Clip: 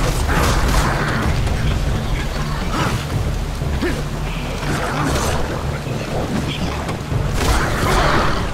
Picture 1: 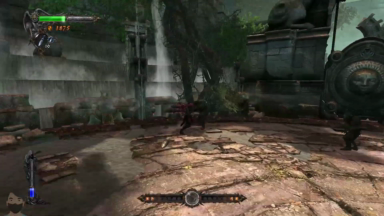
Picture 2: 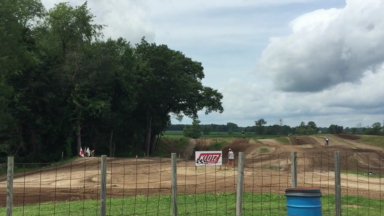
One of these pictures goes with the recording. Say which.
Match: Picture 1